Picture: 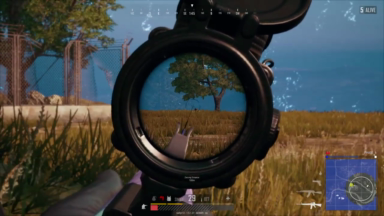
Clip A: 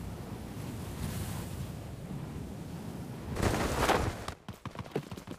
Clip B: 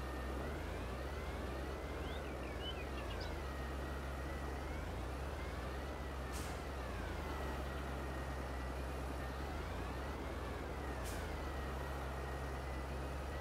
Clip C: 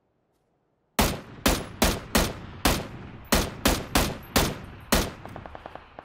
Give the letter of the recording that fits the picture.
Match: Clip C